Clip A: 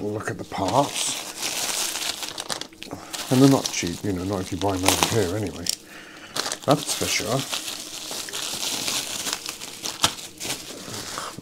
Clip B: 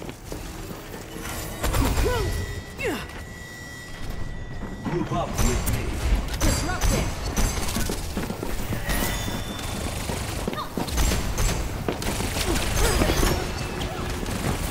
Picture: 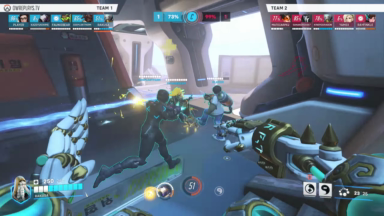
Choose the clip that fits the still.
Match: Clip B